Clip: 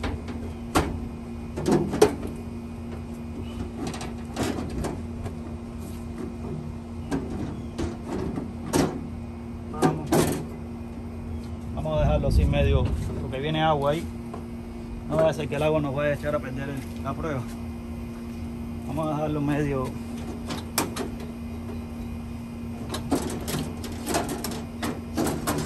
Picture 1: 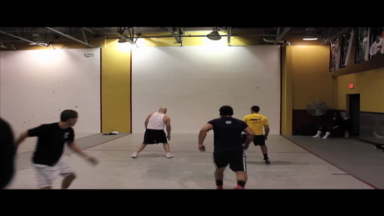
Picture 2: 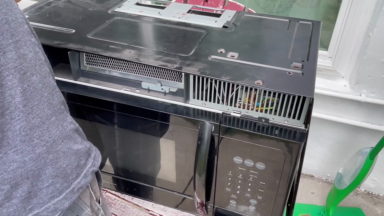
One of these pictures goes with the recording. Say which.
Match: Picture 2